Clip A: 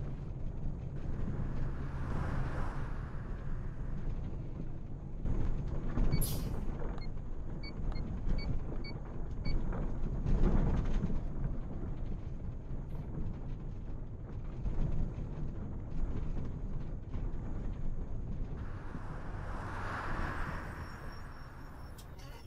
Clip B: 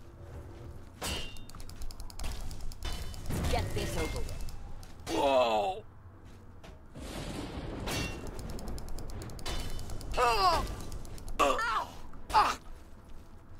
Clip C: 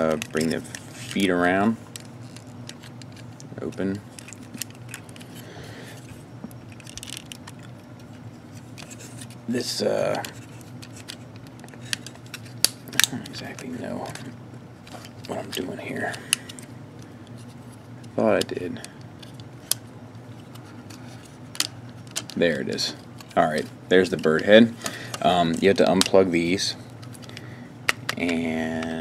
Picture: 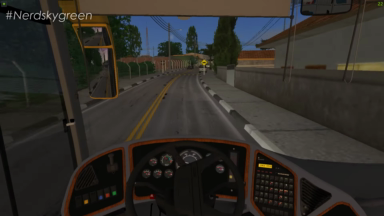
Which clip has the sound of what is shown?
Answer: A